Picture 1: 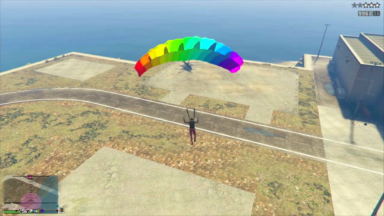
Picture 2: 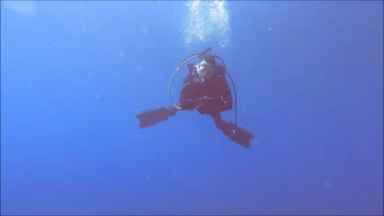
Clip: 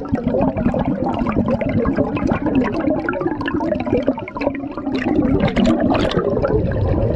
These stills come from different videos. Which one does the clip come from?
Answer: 2